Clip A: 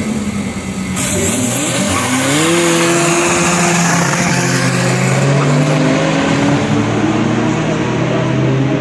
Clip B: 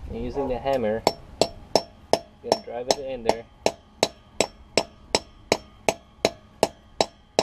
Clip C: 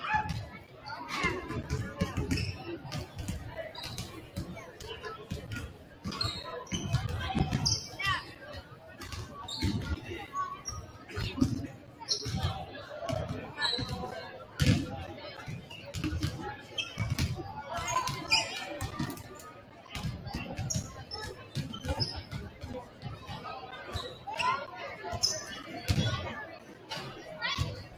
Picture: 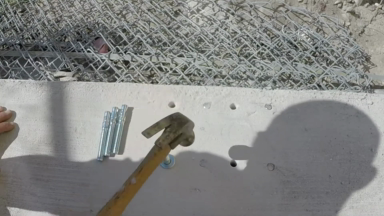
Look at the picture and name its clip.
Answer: B